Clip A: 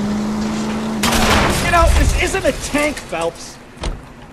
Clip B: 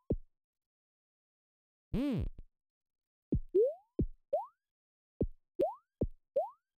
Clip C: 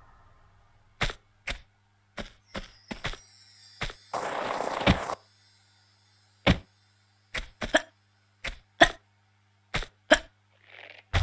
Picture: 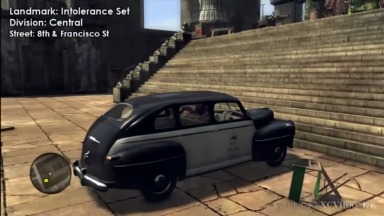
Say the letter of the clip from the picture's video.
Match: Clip A